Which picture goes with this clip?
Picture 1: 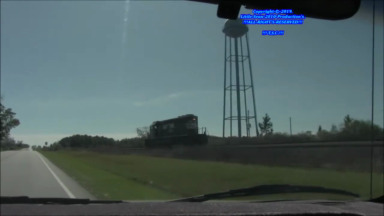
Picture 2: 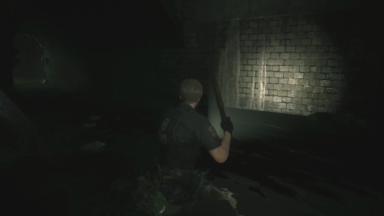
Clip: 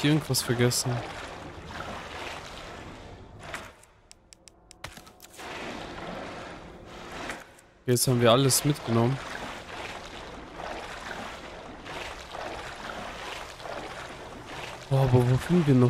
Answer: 2